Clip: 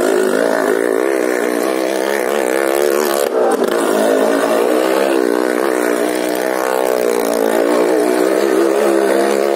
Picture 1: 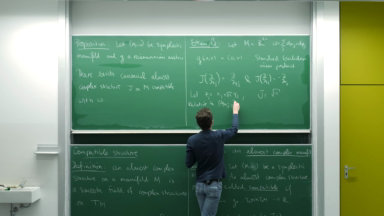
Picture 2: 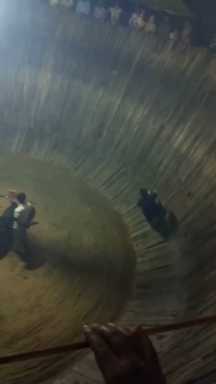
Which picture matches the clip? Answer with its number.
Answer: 2